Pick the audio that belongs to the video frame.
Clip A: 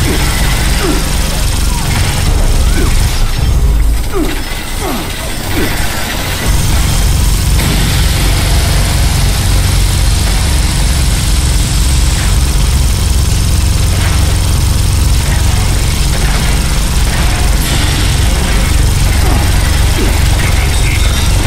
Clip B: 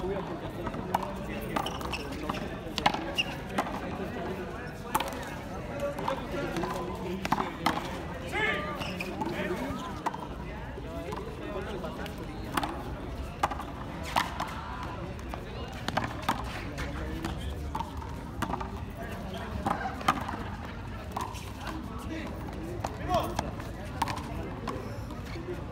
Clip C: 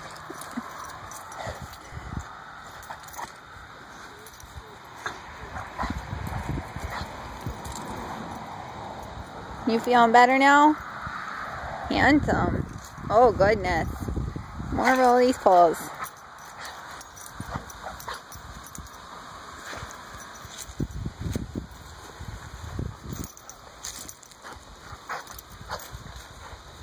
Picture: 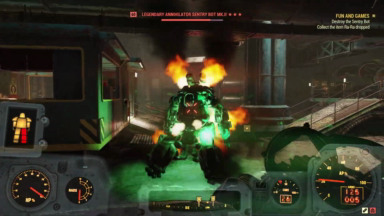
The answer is A